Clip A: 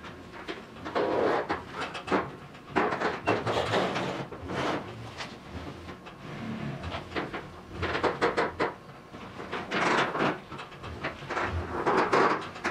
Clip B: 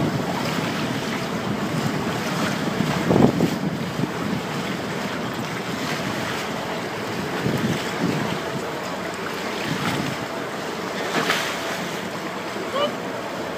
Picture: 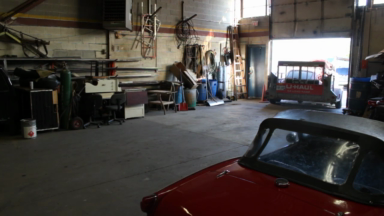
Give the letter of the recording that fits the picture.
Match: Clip A